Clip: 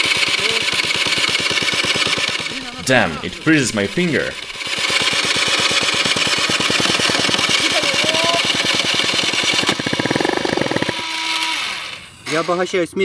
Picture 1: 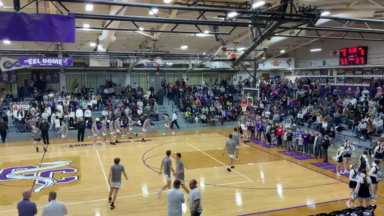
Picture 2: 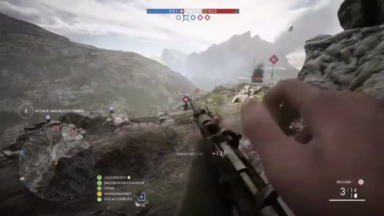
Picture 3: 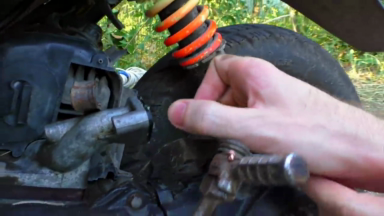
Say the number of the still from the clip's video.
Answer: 3